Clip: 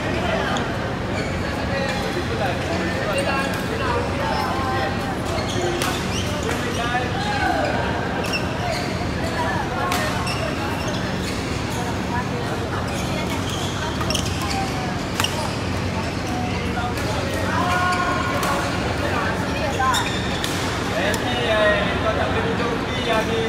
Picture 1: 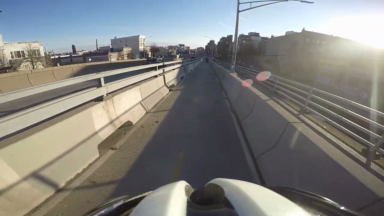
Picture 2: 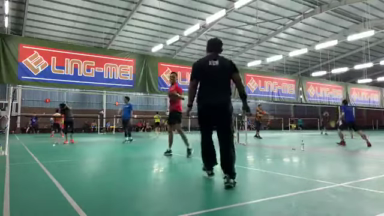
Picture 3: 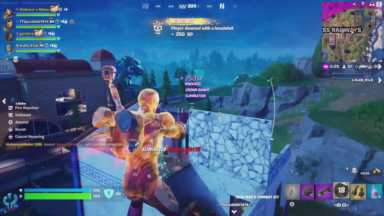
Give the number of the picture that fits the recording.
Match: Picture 2